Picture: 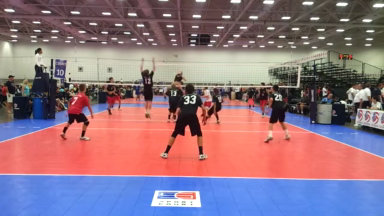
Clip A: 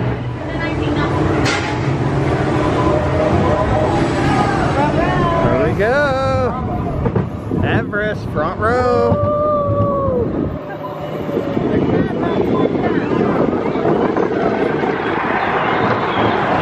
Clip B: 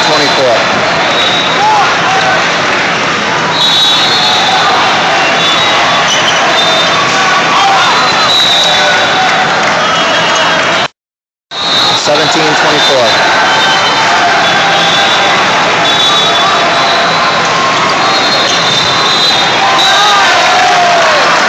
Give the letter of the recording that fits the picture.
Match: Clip B